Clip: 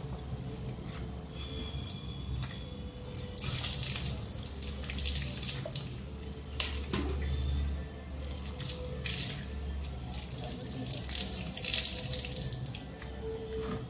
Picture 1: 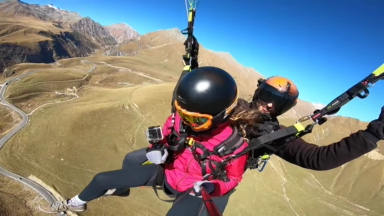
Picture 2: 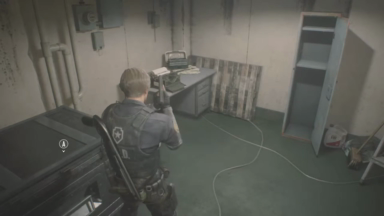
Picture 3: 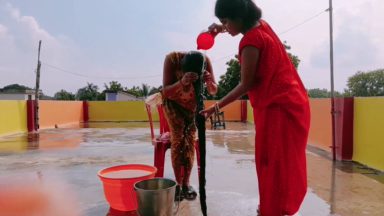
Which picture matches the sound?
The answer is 3